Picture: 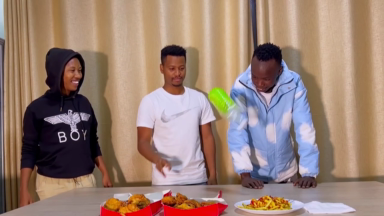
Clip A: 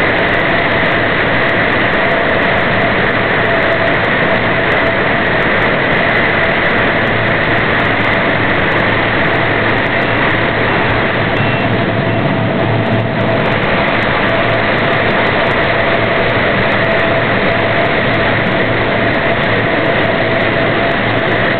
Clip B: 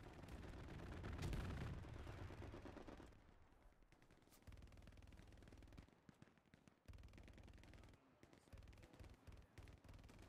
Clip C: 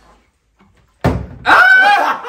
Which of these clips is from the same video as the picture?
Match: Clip C